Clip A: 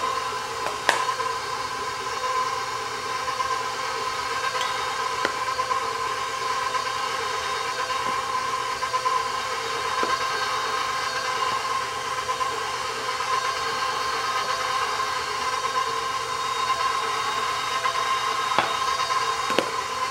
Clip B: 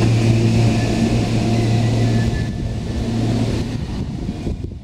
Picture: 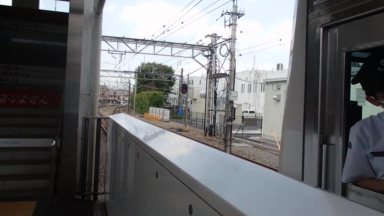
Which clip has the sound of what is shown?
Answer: B